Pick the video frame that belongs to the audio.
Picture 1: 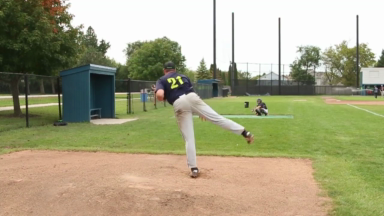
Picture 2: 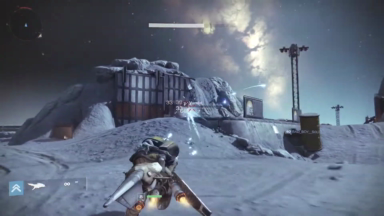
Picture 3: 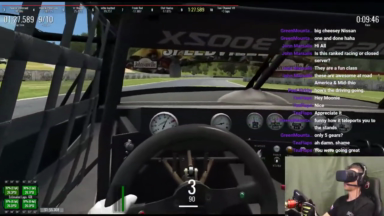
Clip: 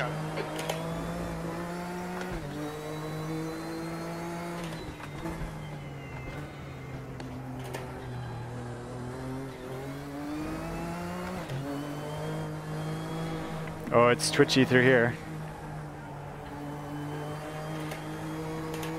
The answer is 3